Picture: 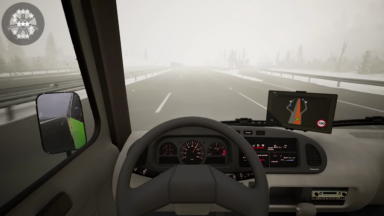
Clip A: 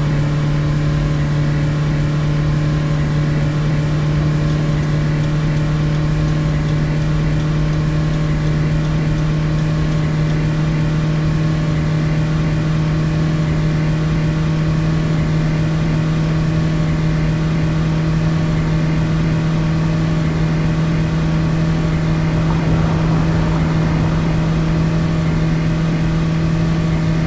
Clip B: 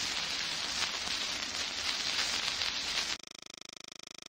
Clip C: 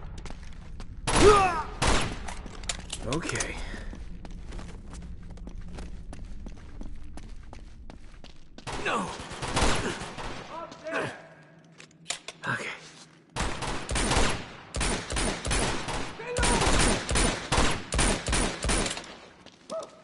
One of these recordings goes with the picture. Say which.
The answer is A